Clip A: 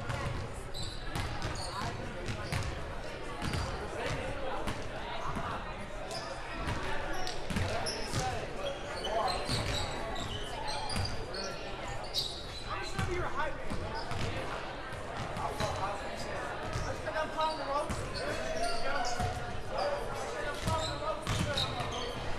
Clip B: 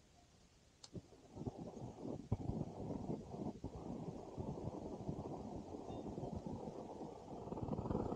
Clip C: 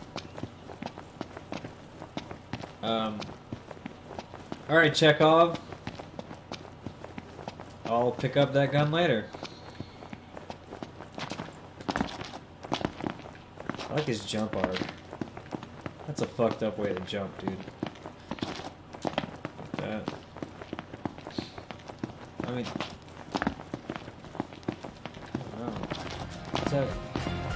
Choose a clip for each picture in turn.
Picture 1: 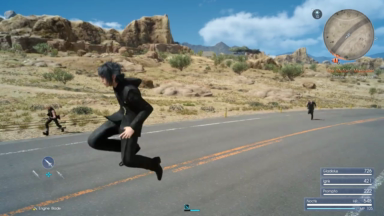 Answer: C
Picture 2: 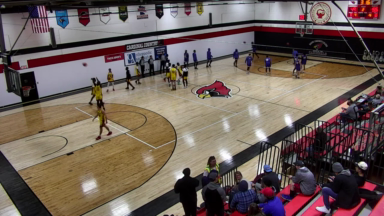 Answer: A